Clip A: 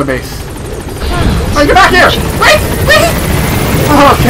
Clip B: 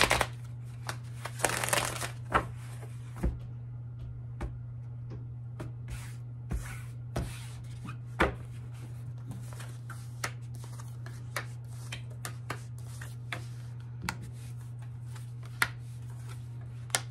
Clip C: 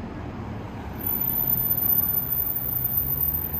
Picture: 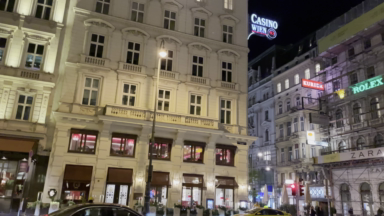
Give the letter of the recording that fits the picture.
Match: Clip C